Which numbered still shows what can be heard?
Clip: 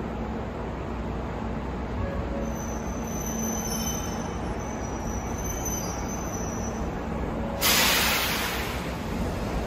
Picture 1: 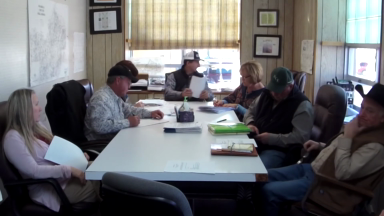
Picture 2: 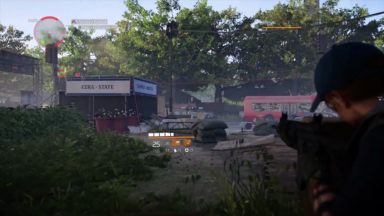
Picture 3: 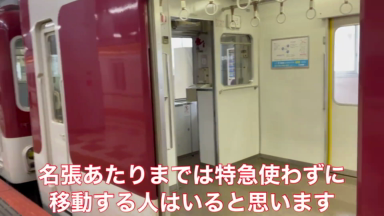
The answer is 3